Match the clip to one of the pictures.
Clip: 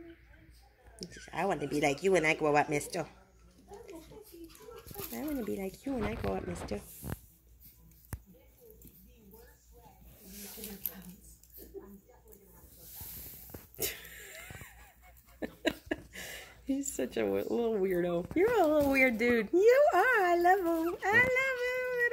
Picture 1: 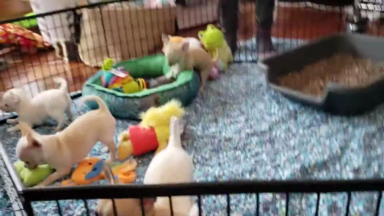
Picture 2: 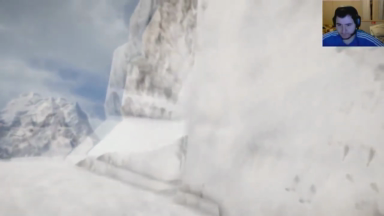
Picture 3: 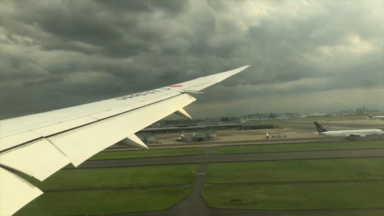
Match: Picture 1